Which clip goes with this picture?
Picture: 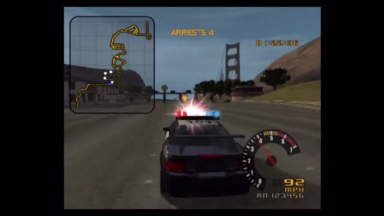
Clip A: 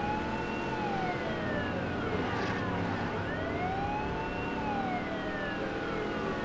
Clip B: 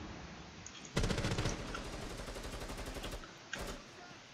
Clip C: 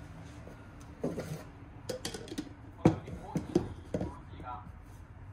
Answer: A